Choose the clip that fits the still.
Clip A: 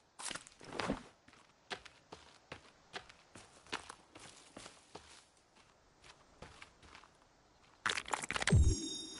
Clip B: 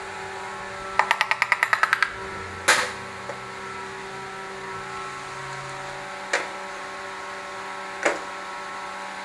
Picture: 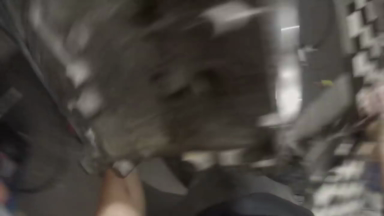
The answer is B